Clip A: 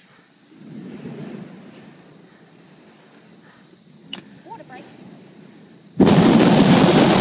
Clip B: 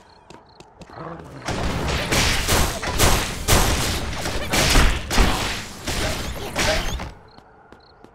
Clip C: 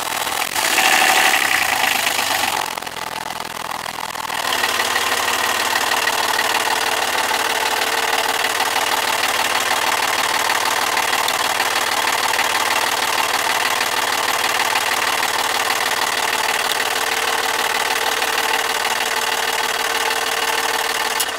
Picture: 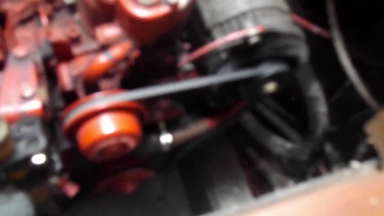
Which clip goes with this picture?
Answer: C